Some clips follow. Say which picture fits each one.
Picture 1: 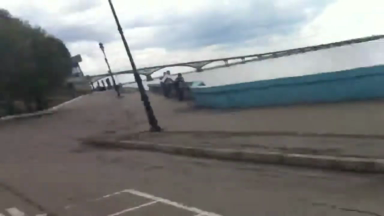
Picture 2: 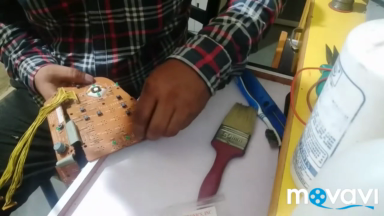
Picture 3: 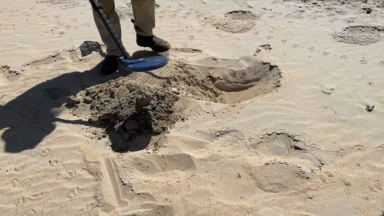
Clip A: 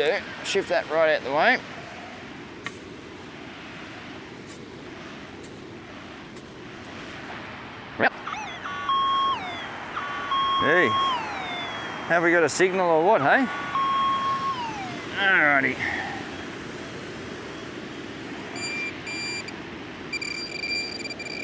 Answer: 3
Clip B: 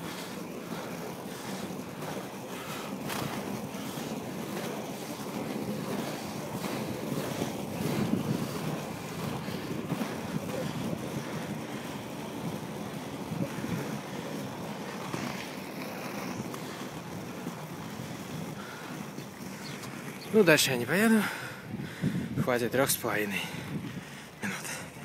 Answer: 1